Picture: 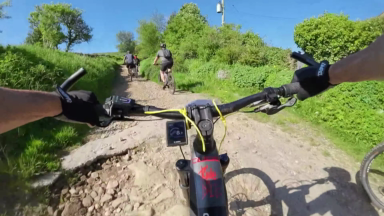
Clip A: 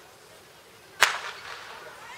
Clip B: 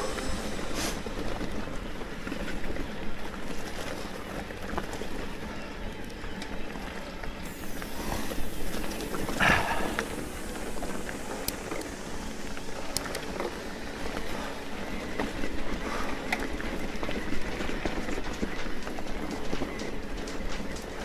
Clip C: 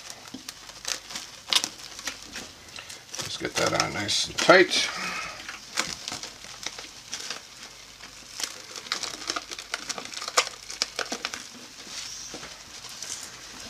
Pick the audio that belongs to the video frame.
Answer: B